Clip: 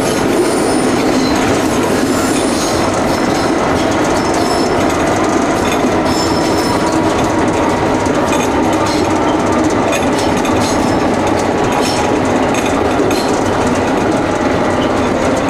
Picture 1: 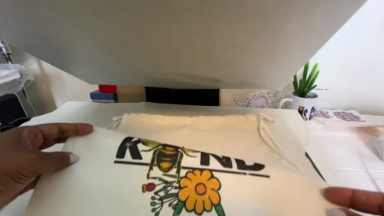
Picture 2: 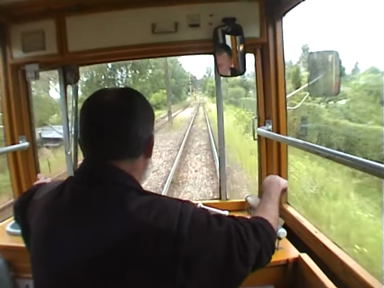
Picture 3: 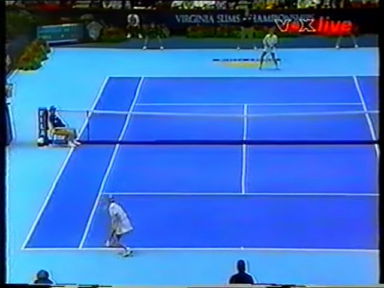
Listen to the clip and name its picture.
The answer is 2